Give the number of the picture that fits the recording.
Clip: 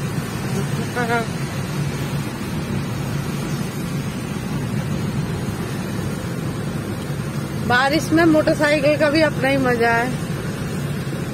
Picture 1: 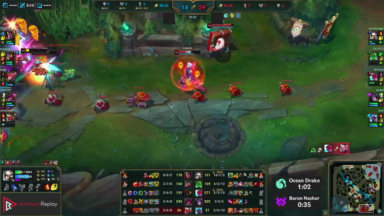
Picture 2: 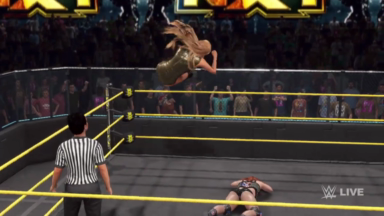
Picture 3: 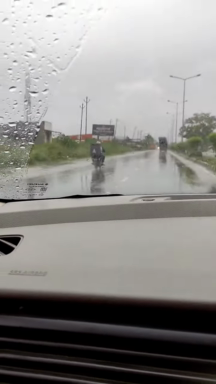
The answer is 3